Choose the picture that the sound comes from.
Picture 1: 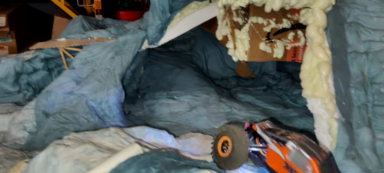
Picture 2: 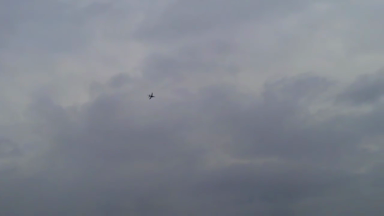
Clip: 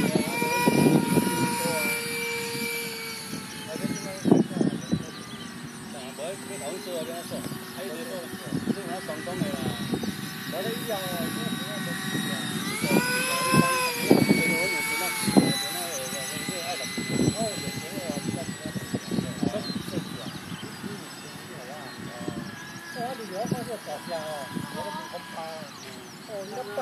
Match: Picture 2